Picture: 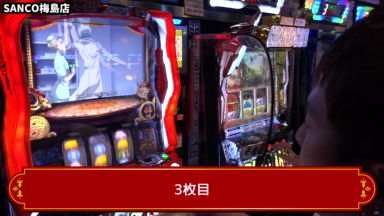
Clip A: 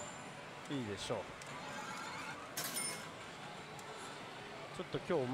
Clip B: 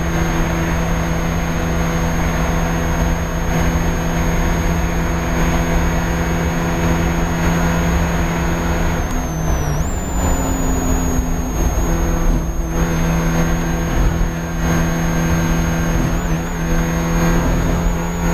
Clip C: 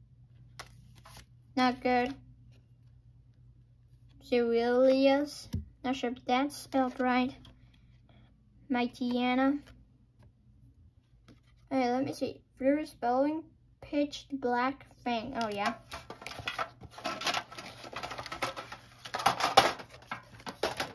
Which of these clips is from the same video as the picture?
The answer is A